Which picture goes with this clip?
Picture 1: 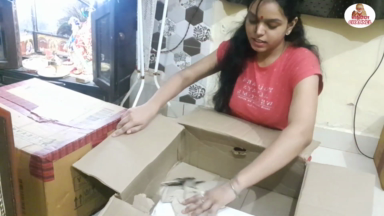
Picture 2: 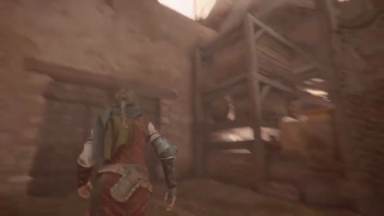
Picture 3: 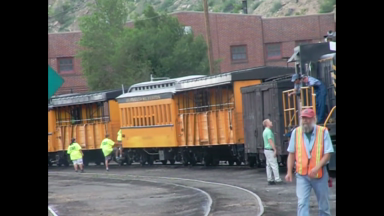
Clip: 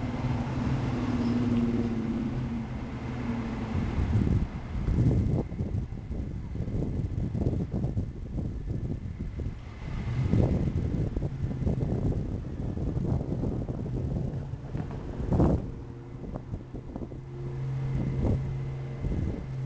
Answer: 3